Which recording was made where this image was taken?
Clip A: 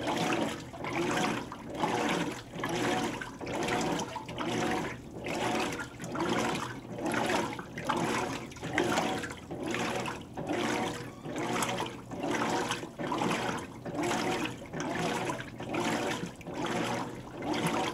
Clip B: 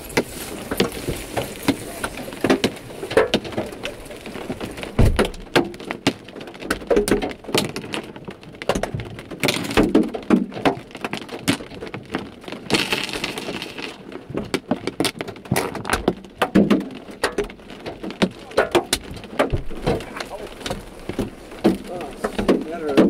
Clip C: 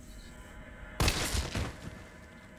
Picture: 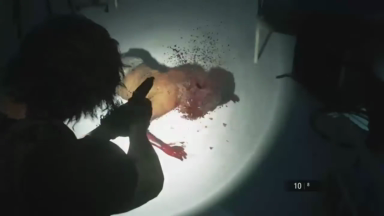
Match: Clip C